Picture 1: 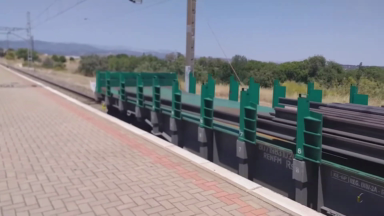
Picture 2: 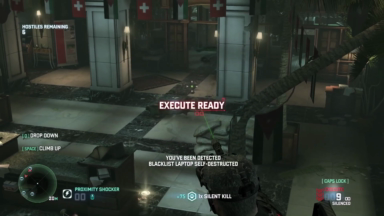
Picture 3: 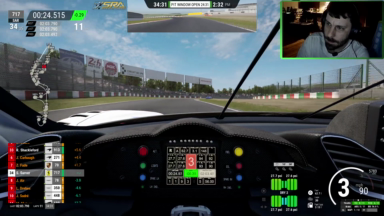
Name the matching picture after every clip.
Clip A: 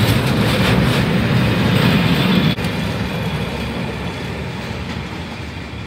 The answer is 1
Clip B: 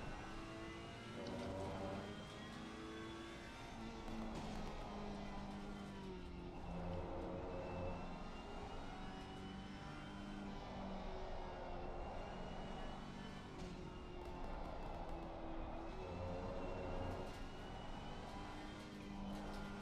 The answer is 3